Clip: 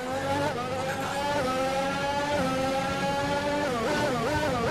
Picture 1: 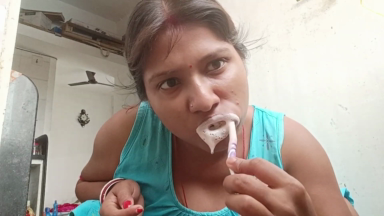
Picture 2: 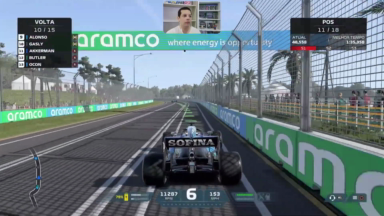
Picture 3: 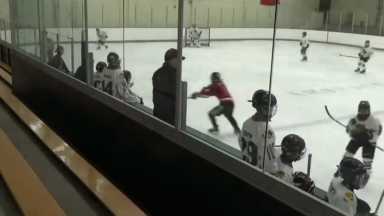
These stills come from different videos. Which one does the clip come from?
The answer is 2